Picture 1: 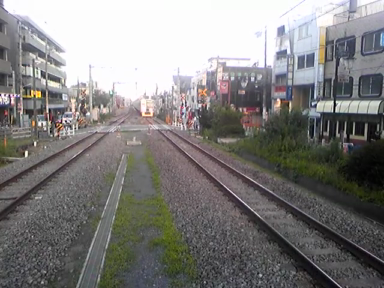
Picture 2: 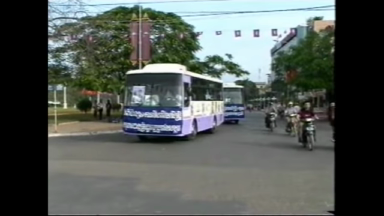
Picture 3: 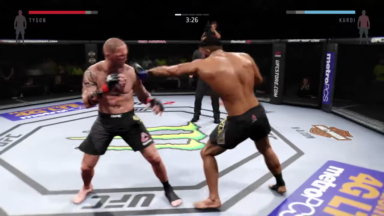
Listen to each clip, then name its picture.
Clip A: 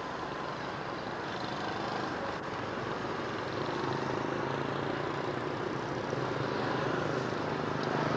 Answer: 2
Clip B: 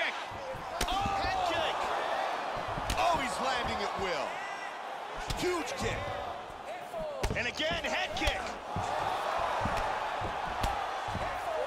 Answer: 3